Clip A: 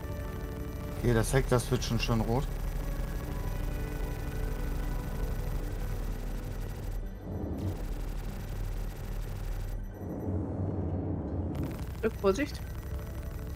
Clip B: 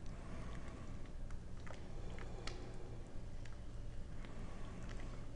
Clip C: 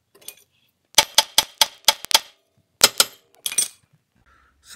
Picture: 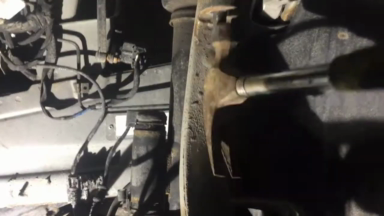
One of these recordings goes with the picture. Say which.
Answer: C